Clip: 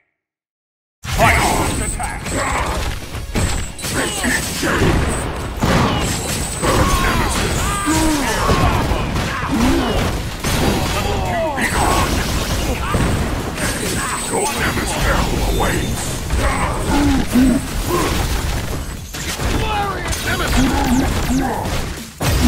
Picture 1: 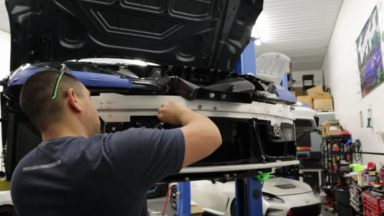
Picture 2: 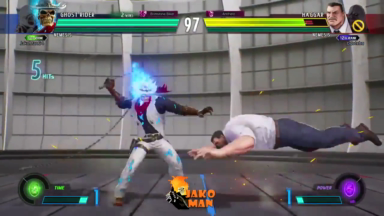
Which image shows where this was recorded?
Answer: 2